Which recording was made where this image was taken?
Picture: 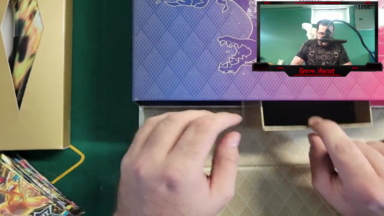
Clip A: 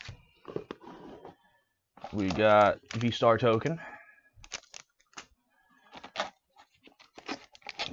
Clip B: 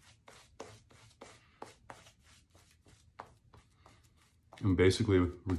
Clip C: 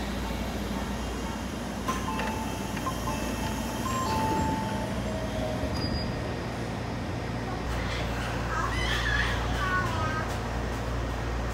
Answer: A